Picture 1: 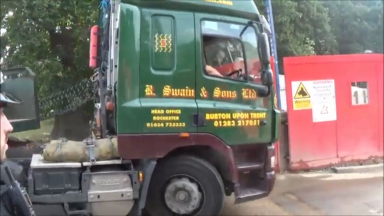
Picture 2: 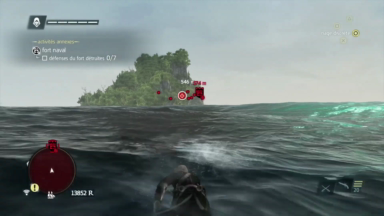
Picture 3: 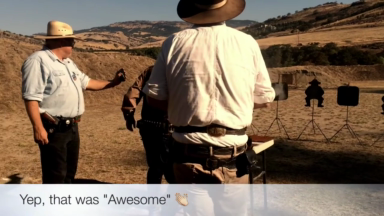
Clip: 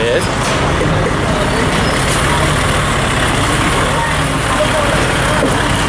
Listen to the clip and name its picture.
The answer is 1